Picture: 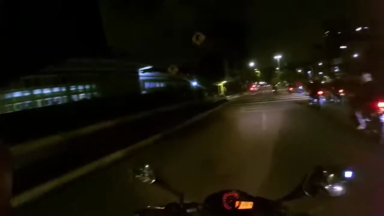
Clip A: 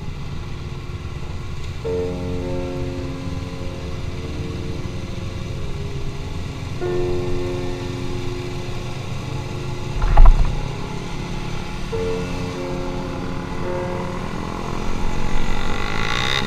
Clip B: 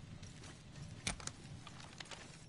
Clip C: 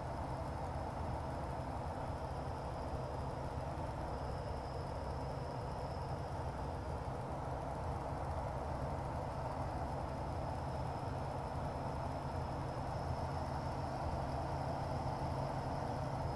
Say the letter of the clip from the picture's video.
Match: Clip A